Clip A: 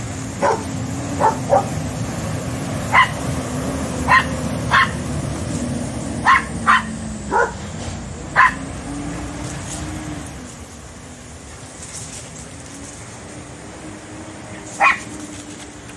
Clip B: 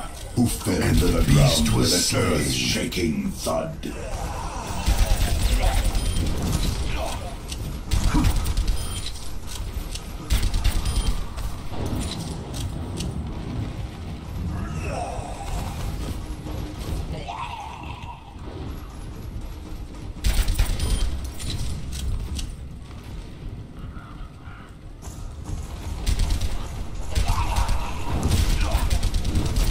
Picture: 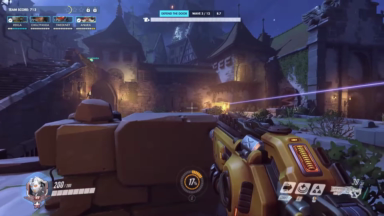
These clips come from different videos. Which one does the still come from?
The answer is B